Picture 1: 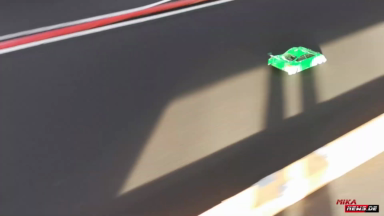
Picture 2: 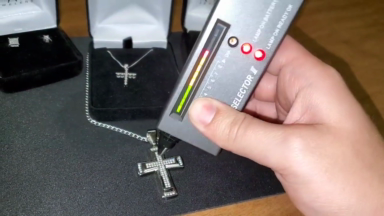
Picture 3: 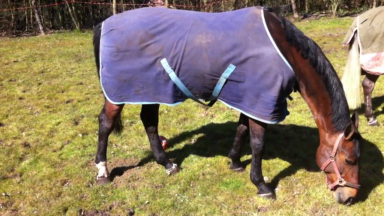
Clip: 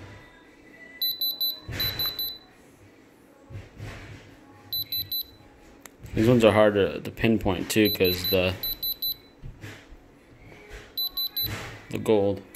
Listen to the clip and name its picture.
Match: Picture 2